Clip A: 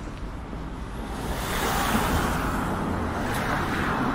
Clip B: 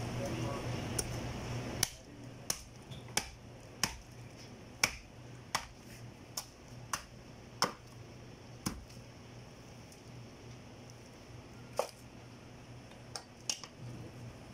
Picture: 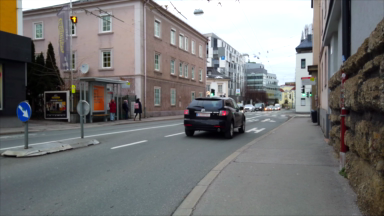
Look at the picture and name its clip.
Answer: A